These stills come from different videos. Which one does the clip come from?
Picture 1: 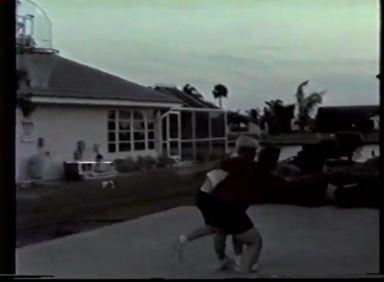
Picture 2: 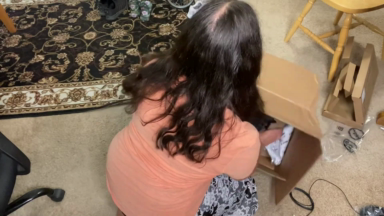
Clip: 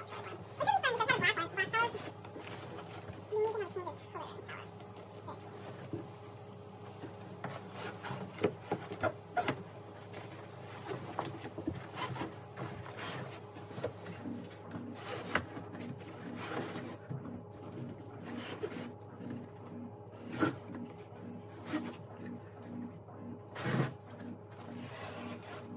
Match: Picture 2